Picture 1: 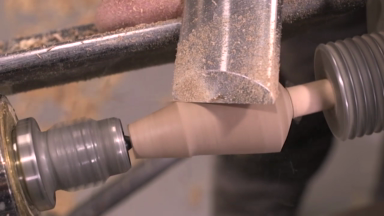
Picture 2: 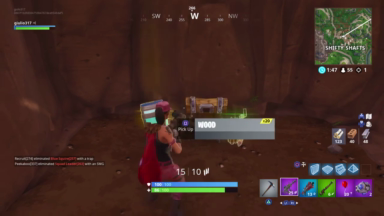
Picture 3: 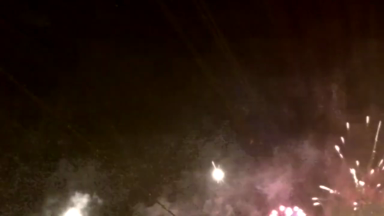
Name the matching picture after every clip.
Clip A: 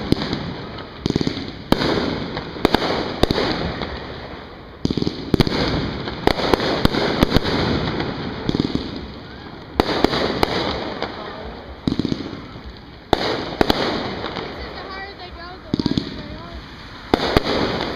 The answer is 3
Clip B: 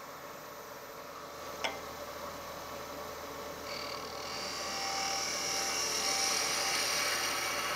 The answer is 1